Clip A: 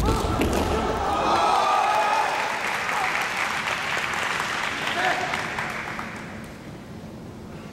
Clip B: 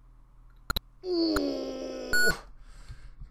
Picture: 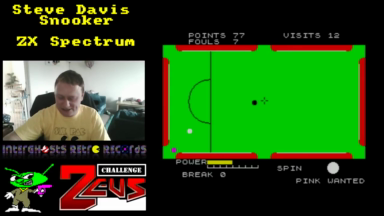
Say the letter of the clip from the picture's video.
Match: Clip B